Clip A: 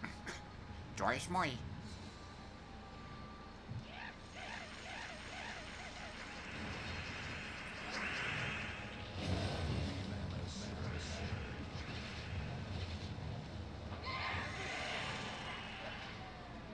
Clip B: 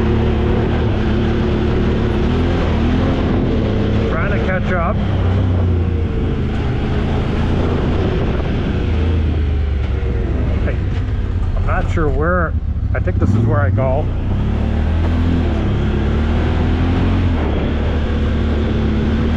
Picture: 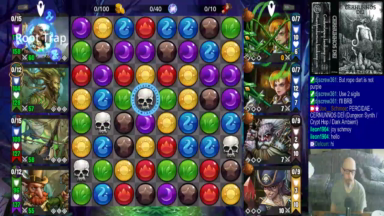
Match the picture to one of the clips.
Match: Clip A